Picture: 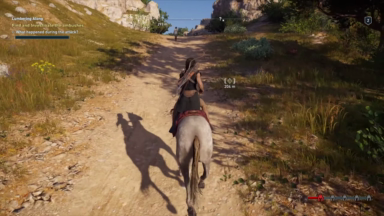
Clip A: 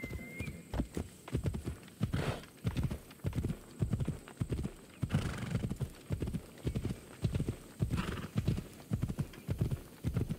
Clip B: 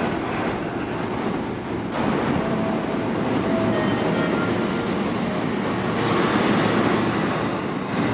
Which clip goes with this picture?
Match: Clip A